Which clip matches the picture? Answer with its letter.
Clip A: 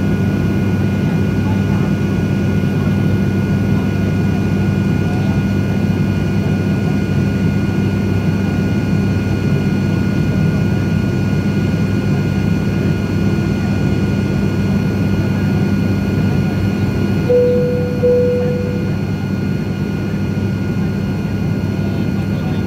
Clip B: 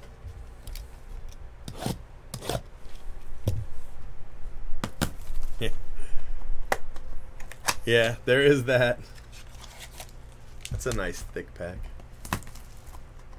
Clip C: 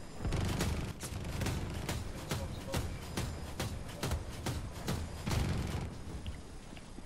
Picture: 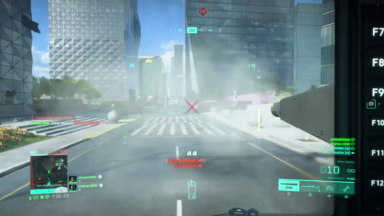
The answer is C